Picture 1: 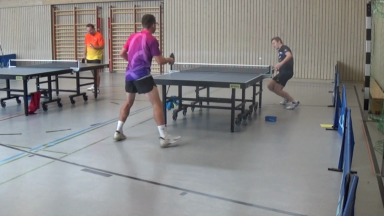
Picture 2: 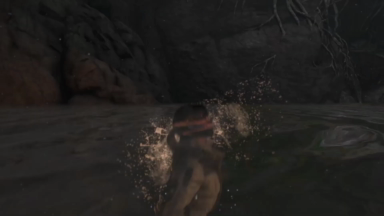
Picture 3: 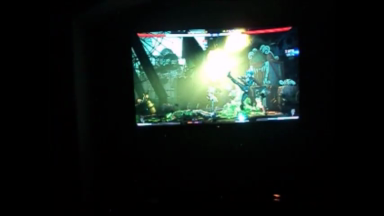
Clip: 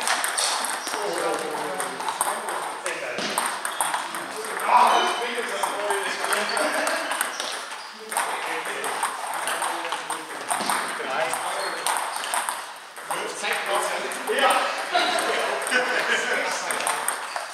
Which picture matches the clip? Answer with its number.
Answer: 1